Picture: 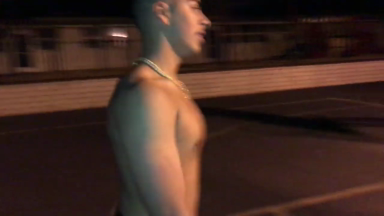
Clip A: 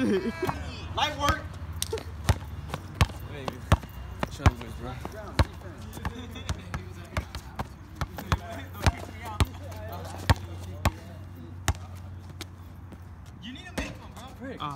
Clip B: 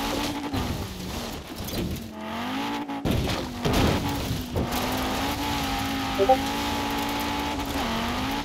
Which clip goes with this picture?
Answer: A